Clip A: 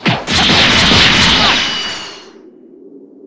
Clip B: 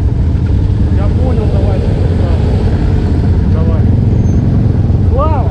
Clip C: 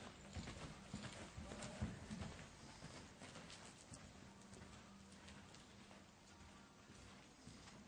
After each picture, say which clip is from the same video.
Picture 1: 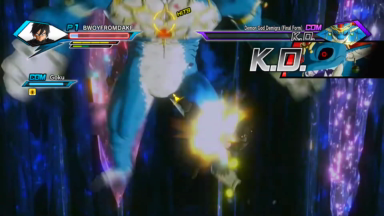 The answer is A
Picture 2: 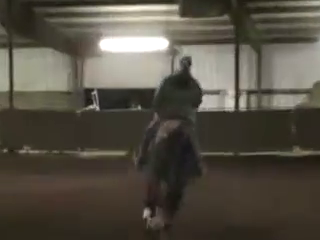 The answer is C